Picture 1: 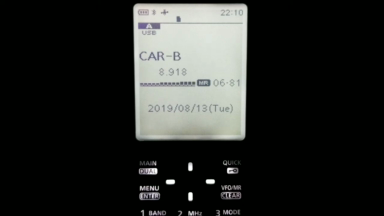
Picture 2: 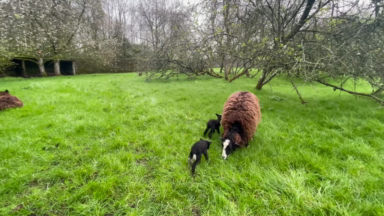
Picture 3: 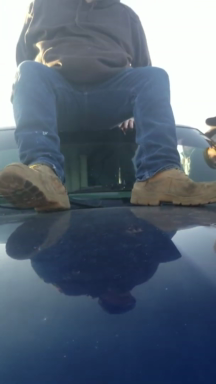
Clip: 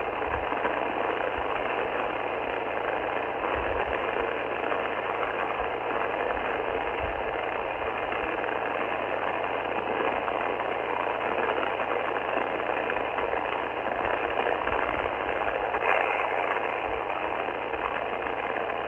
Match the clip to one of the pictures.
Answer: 1